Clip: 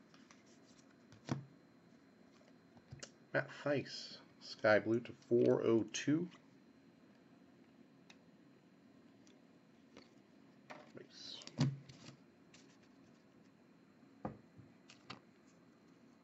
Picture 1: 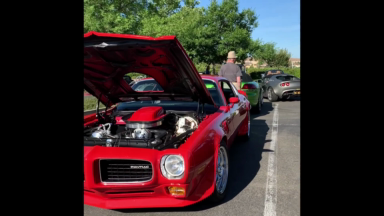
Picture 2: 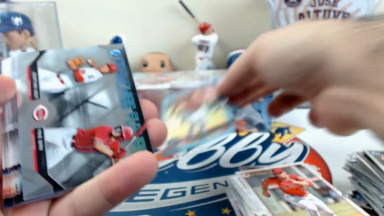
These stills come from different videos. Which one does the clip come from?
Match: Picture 2